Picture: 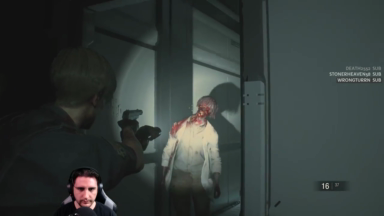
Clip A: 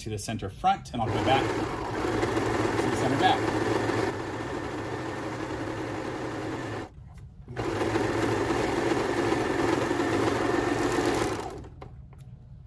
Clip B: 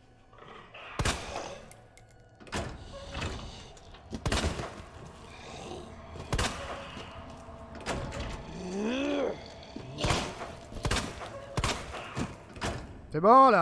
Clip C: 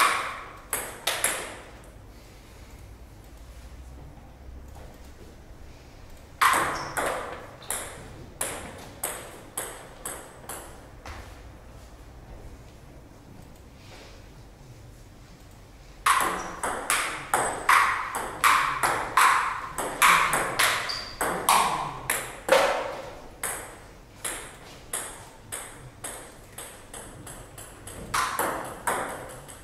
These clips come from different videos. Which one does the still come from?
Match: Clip B